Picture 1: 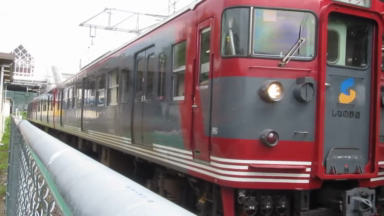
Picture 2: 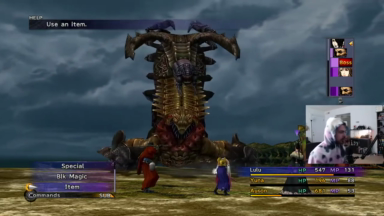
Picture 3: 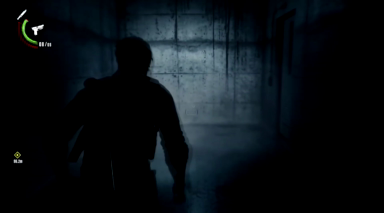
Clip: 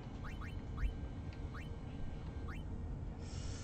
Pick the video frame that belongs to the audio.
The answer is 2